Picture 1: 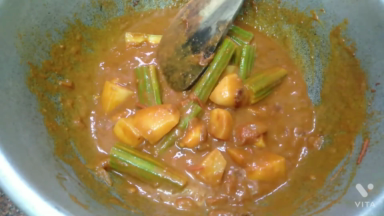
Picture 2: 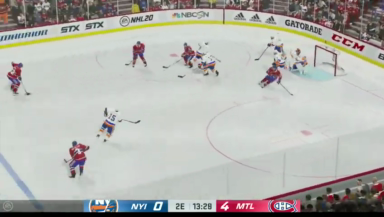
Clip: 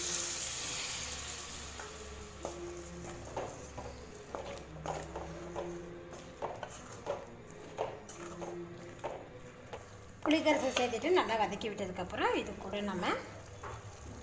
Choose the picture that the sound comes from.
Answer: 1